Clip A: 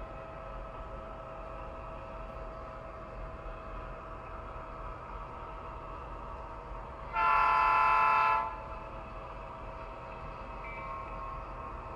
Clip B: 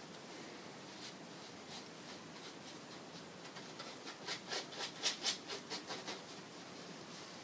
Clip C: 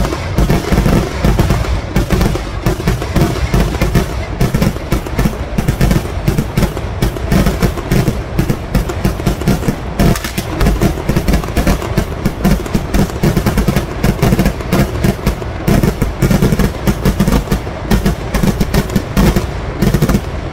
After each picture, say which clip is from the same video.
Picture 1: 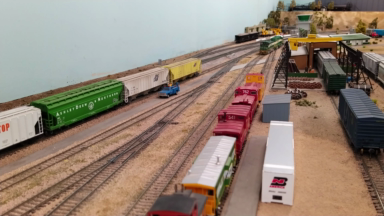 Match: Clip A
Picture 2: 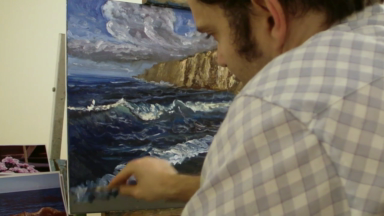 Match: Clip B